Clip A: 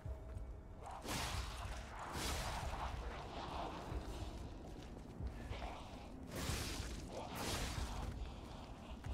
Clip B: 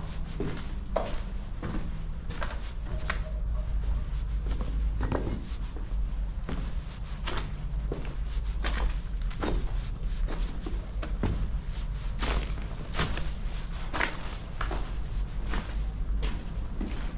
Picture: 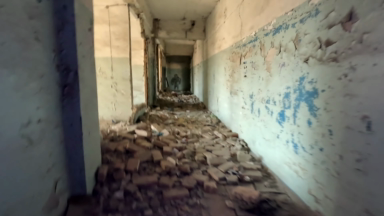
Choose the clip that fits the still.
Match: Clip B